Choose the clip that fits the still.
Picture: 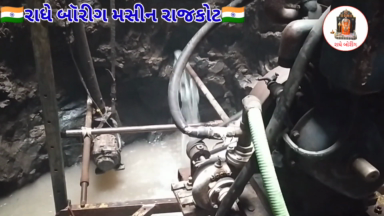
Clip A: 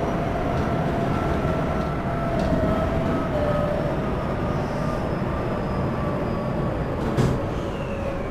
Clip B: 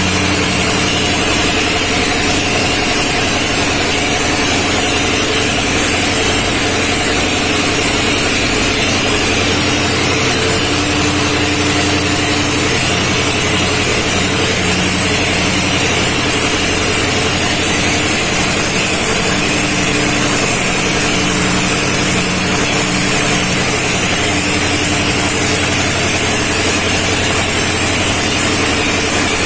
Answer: B